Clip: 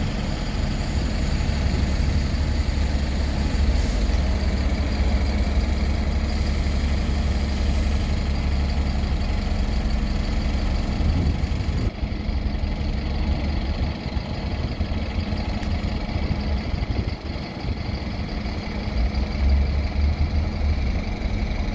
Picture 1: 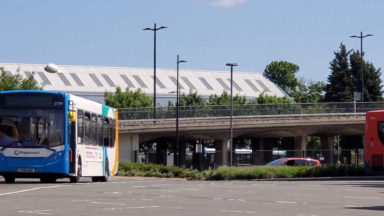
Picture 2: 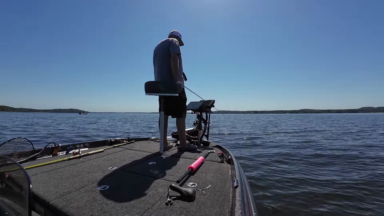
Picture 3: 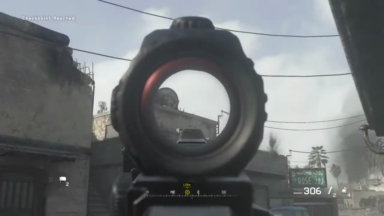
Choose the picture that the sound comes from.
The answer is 1